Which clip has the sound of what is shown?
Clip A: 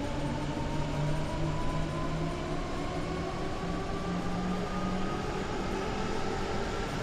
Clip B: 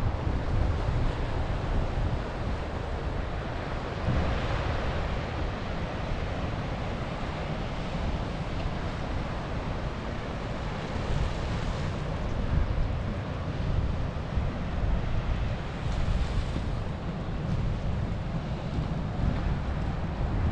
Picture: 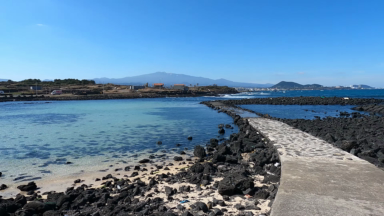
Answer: B